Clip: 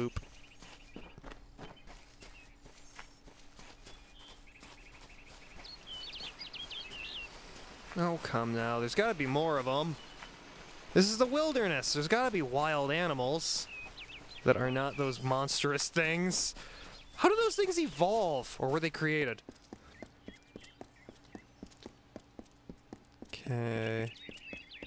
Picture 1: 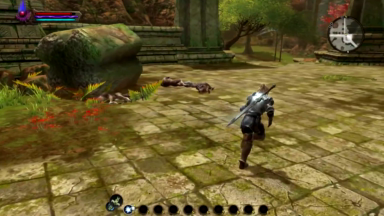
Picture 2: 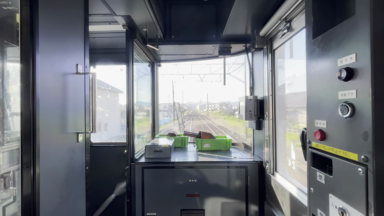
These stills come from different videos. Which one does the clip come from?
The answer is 1